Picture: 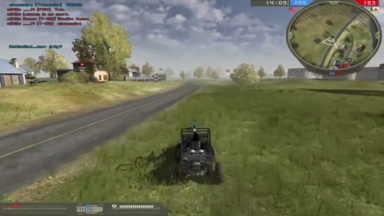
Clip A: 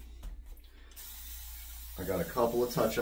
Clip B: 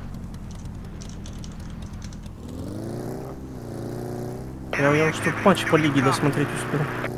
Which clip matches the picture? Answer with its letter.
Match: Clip B